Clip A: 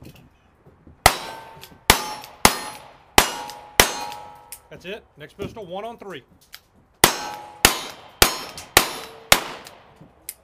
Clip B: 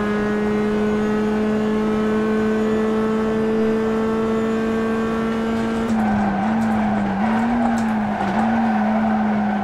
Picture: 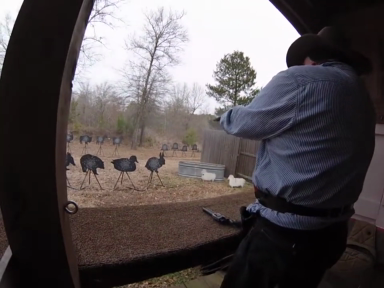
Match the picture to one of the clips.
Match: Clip A